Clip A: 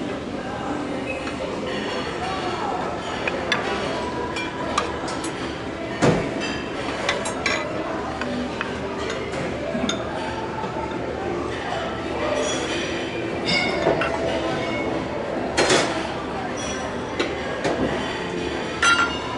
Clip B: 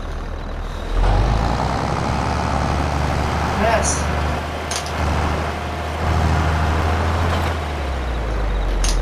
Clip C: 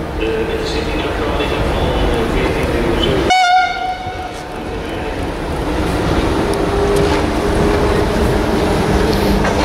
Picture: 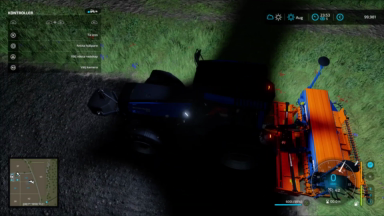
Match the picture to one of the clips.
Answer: B